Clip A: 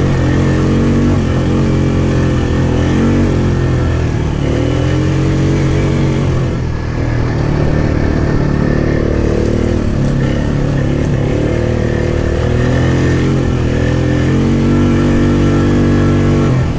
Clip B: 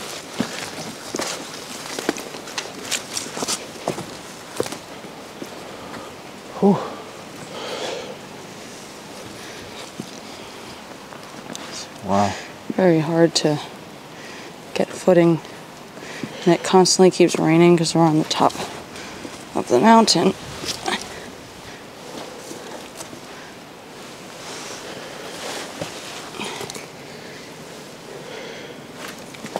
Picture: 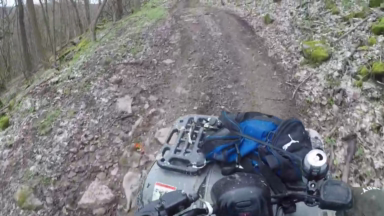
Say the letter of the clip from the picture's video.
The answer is A